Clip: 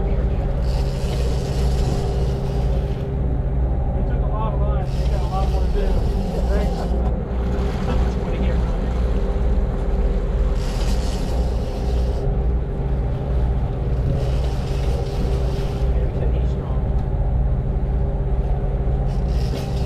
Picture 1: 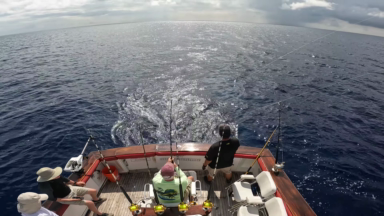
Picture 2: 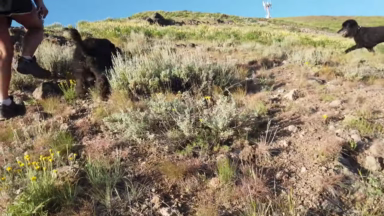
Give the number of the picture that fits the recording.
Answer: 1